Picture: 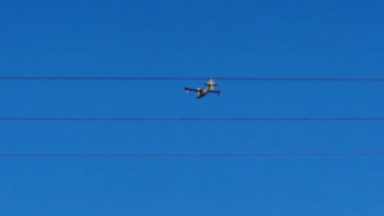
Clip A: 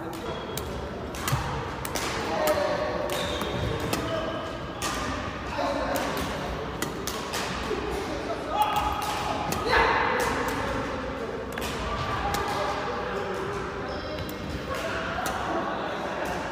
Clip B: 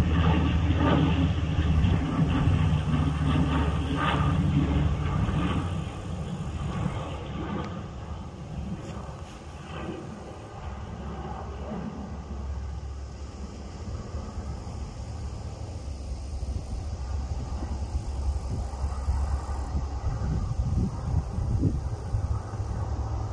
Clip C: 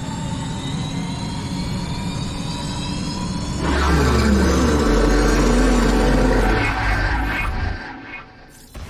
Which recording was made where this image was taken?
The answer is B